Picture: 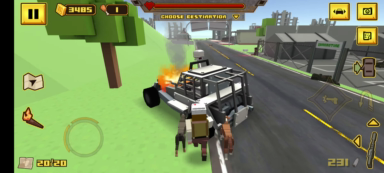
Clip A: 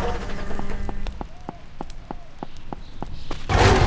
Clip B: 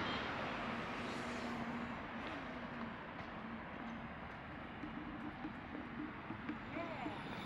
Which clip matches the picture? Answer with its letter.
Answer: A